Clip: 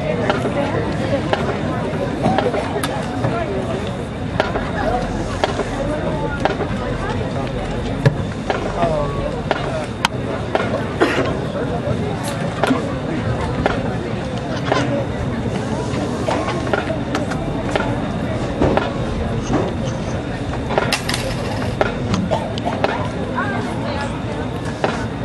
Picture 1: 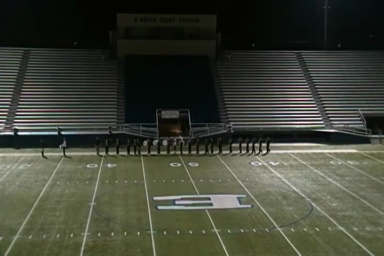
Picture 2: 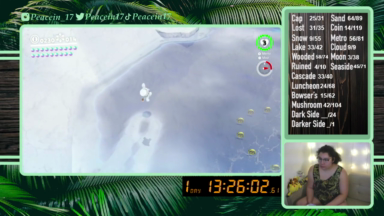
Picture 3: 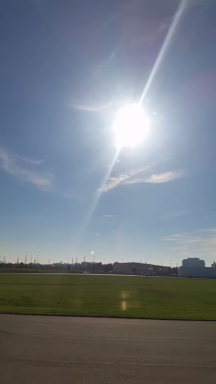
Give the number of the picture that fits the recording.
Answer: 1